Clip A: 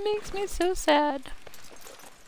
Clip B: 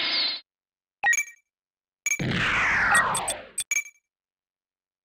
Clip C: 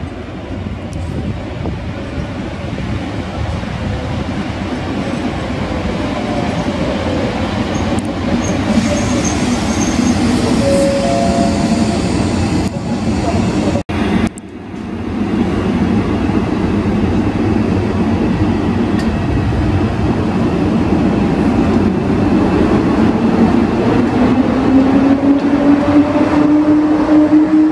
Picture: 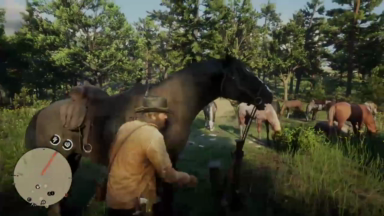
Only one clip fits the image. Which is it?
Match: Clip A